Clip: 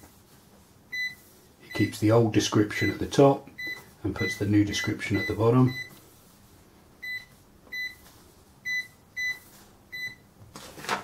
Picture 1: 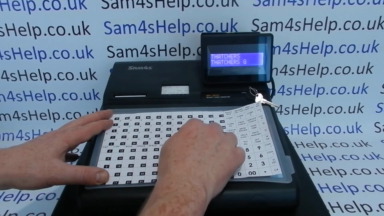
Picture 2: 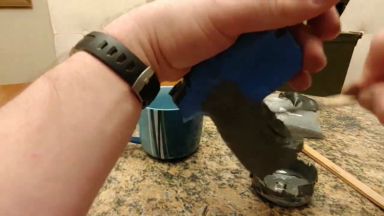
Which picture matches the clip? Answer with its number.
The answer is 1